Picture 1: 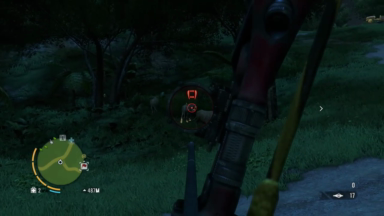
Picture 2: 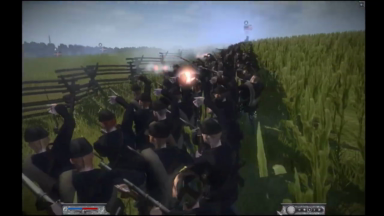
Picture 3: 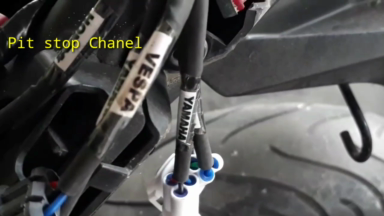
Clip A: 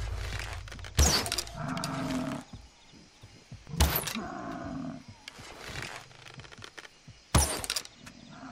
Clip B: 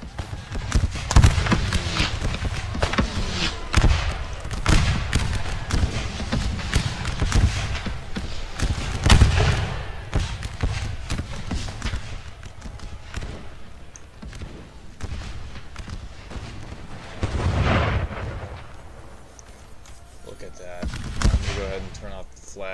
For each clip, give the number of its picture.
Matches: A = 1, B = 2